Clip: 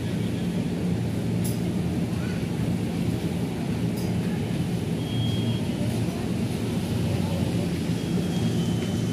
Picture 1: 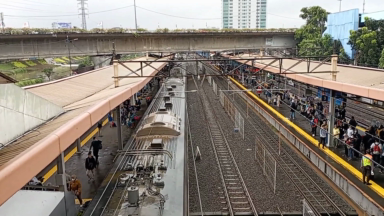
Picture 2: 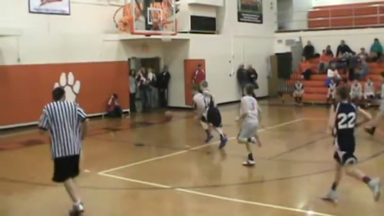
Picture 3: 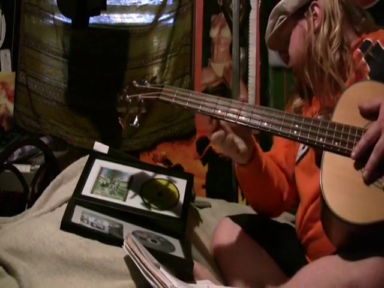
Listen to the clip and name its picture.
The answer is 1